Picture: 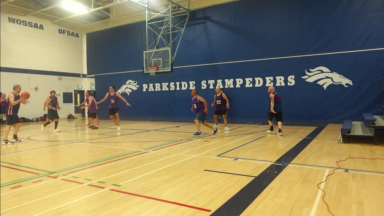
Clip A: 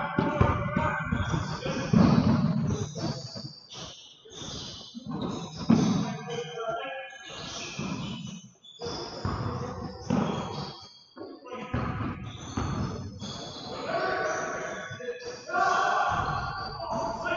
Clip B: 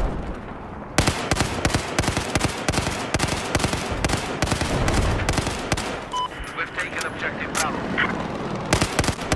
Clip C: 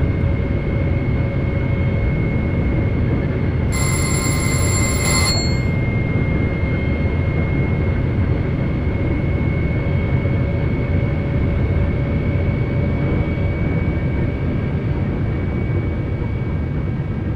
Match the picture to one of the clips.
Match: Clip A